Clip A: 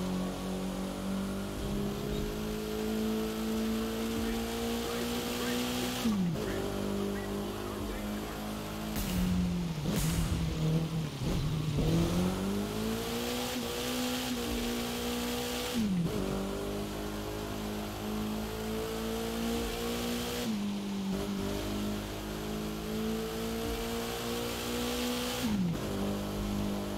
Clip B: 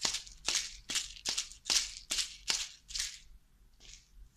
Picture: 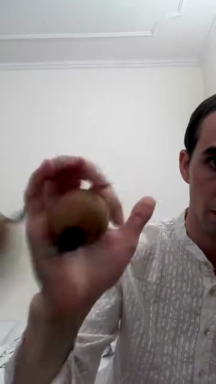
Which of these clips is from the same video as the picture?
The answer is B